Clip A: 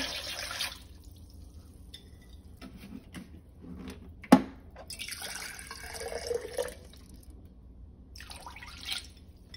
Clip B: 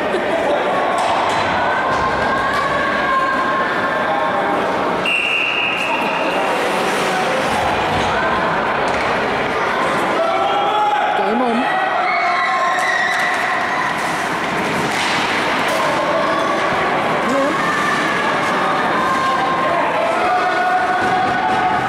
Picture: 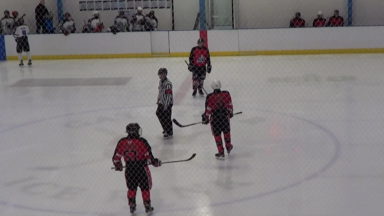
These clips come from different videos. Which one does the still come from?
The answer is B